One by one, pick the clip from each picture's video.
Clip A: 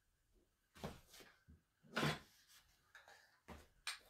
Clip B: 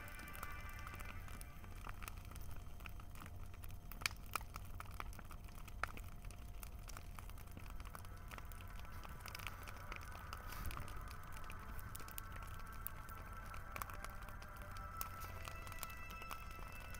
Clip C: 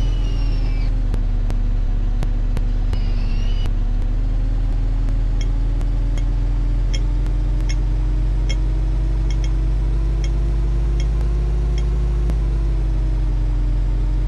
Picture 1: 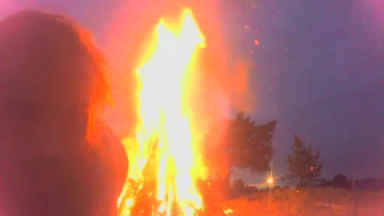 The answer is B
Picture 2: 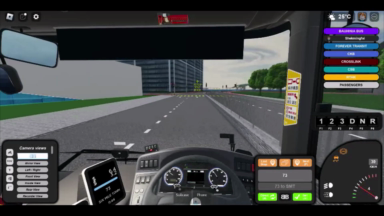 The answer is C